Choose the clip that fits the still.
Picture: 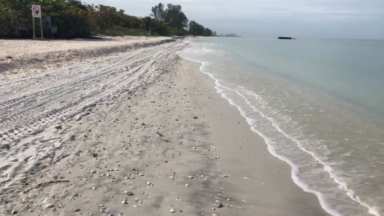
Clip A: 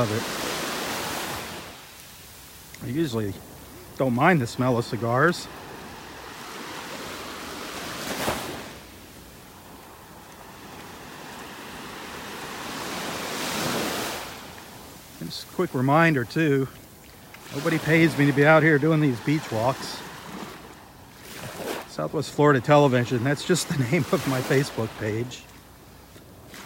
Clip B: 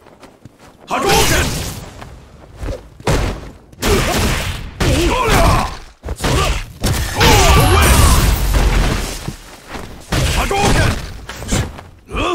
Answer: A